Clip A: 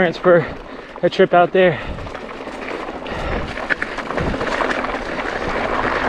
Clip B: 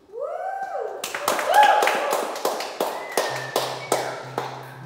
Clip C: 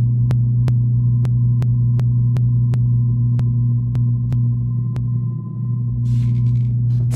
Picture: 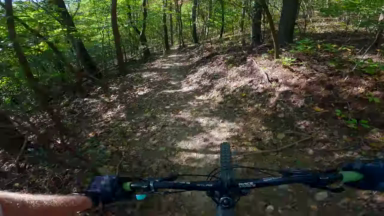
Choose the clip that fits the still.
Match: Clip A